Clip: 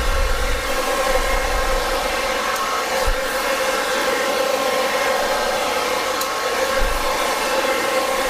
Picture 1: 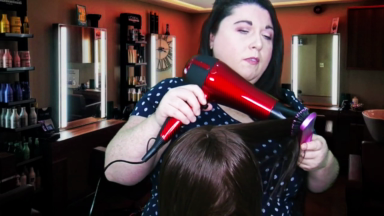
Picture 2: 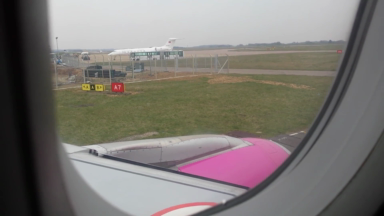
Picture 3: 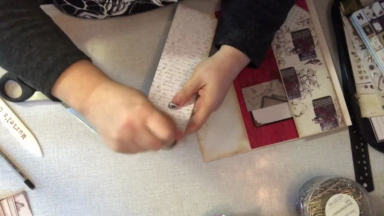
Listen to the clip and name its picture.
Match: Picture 1